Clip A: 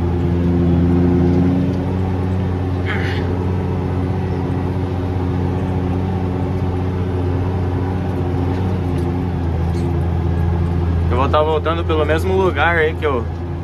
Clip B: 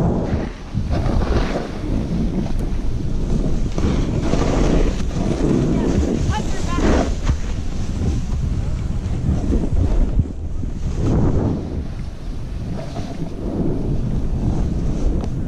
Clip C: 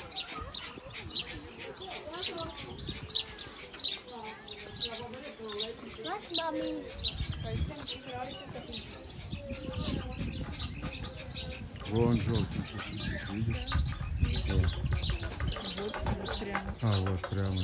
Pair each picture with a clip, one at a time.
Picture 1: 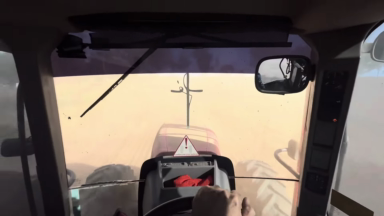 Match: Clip A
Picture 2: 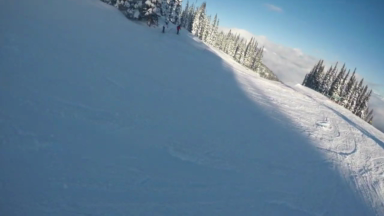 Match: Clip B